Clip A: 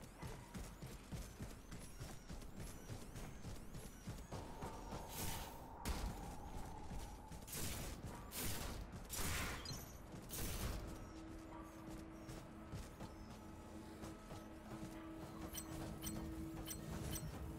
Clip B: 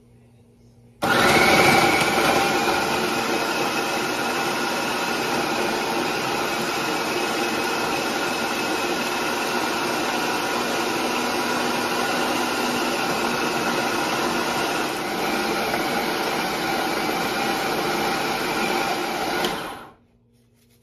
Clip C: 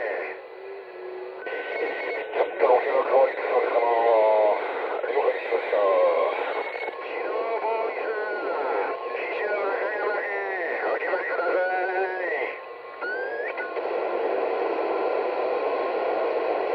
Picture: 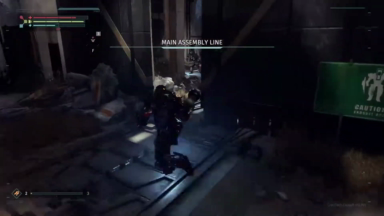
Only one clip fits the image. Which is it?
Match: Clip A